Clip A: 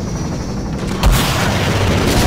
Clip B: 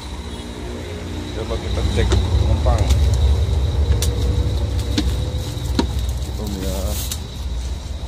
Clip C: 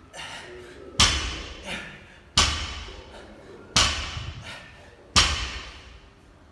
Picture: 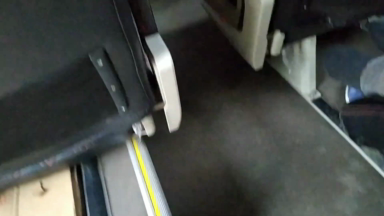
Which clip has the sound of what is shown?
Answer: B